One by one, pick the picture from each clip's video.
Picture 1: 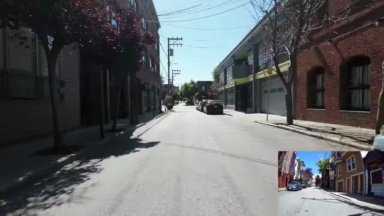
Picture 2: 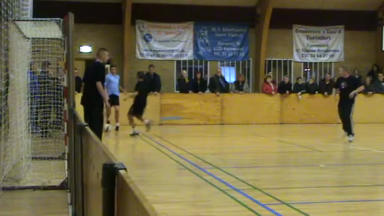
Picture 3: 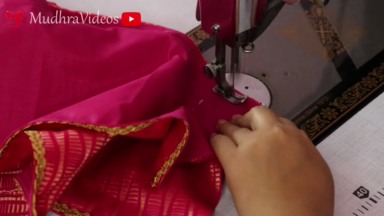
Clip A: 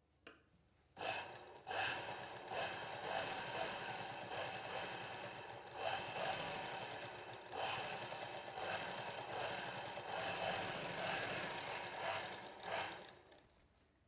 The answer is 3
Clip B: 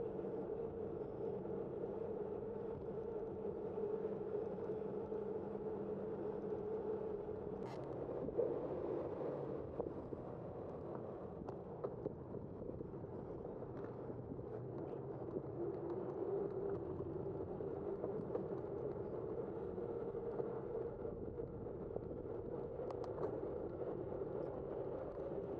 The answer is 1